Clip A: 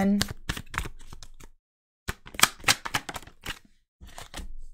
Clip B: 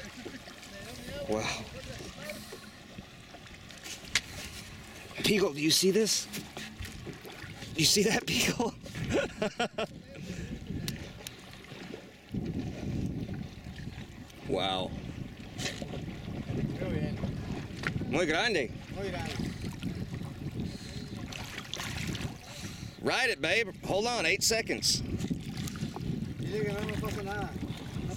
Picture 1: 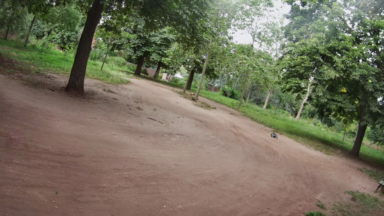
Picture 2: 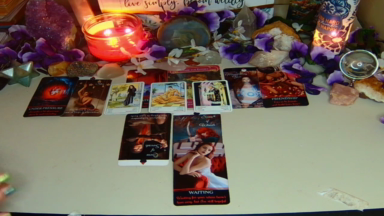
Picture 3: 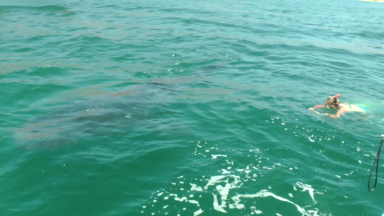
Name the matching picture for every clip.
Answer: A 2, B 3